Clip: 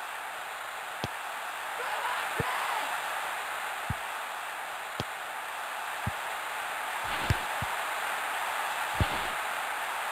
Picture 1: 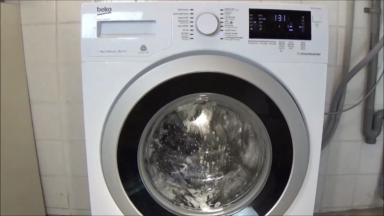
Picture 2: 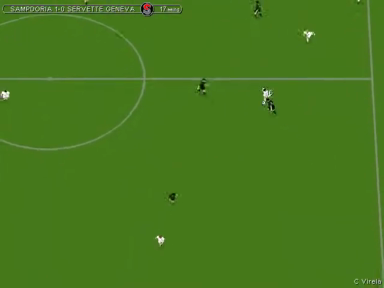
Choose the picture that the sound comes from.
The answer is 2